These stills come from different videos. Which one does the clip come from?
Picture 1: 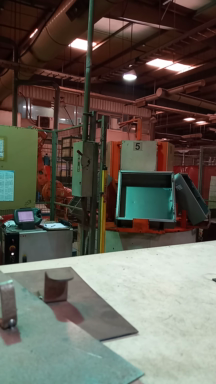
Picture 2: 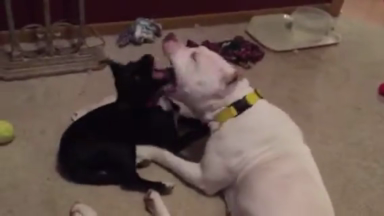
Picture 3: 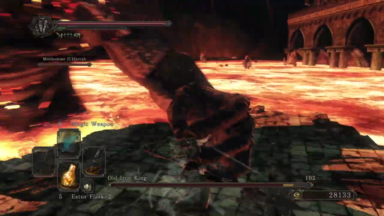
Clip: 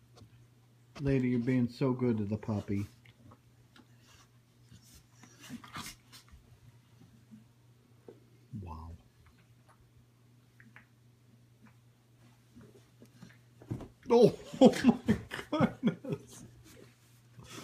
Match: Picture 2